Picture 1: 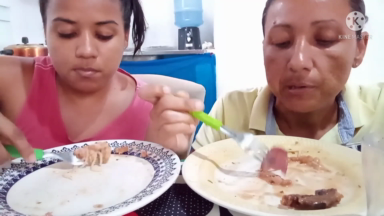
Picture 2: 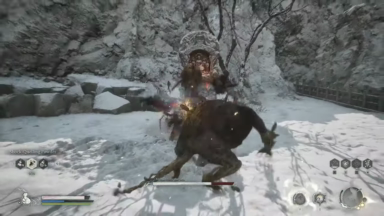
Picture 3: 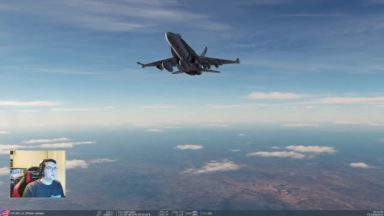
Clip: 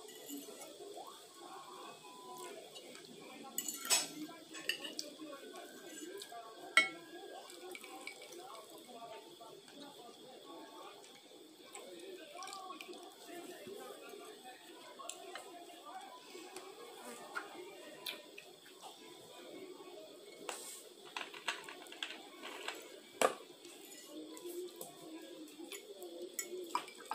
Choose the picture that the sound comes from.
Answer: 1